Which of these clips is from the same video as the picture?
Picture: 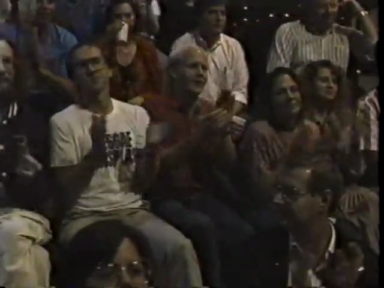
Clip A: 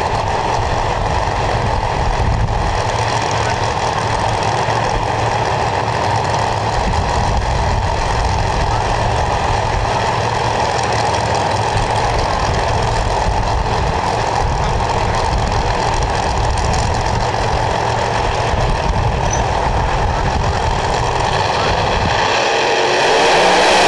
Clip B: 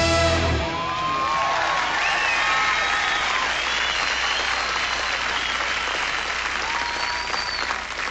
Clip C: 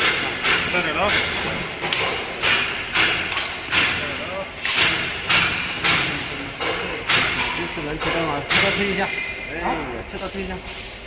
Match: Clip B